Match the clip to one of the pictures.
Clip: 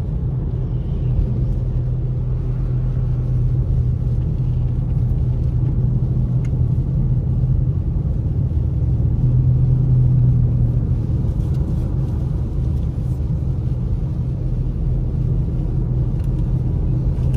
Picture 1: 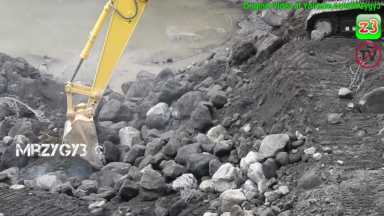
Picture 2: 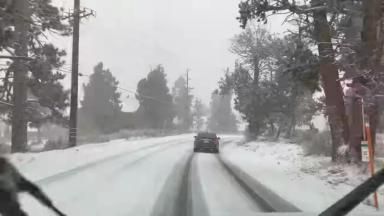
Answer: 2